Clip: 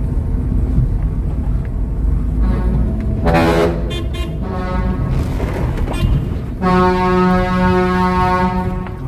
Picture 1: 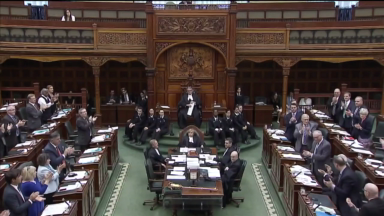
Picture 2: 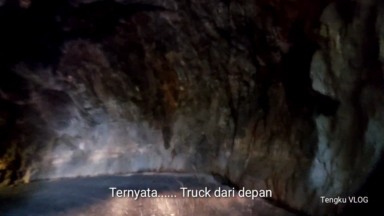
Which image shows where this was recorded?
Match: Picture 2